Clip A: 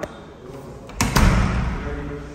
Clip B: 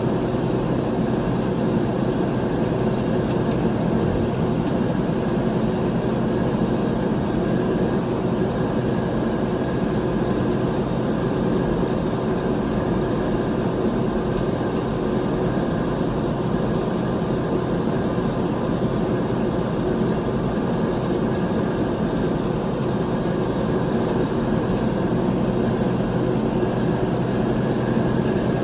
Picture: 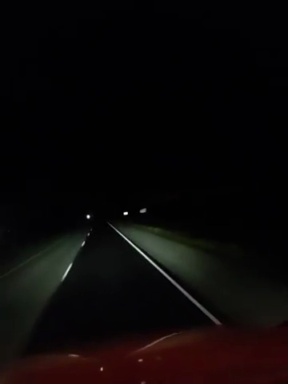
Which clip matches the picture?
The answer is B